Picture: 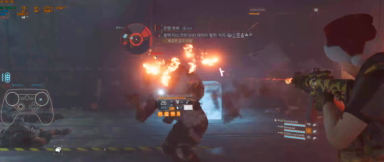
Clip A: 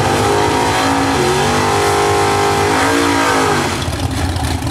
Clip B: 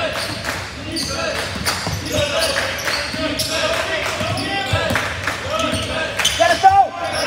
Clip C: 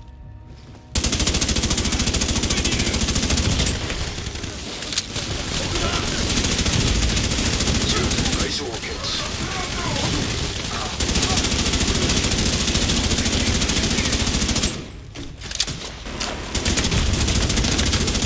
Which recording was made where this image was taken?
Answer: C